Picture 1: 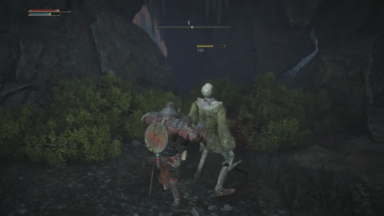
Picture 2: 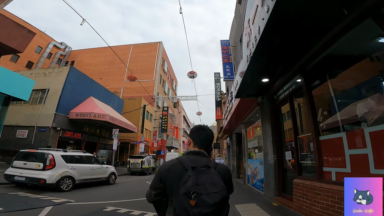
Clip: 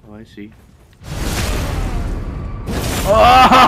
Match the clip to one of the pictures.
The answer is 1